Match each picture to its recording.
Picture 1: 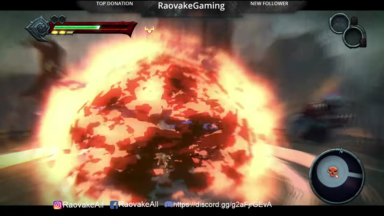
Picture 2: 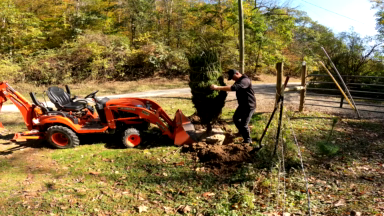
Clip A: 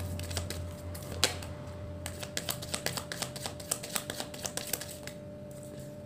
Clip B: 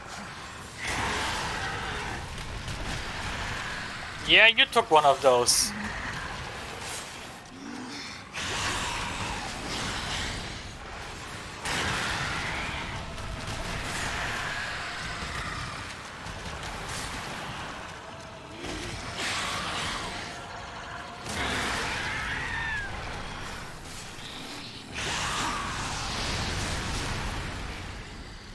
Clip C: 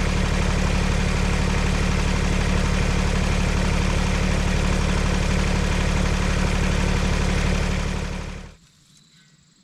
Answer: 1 B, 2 C